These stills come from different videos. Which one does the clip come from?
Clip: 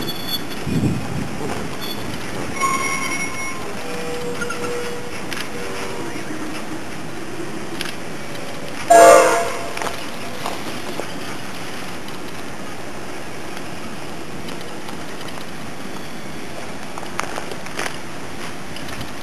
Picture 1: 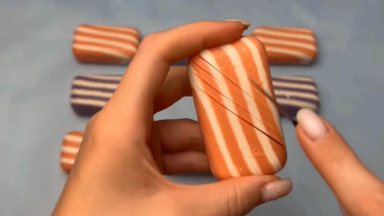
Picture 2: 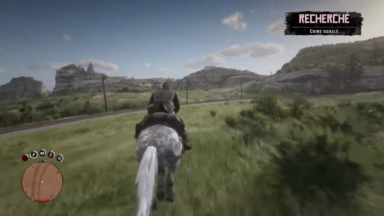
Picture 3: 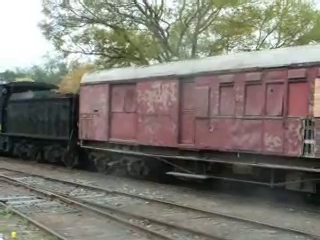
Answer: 3